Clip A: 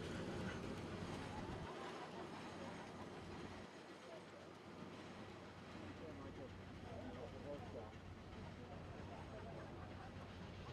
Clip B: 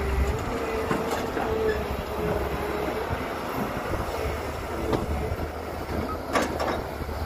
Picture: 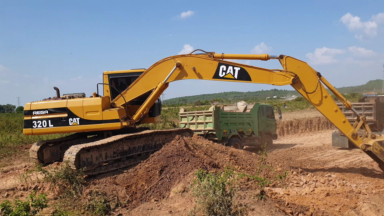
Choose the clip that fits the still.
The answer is B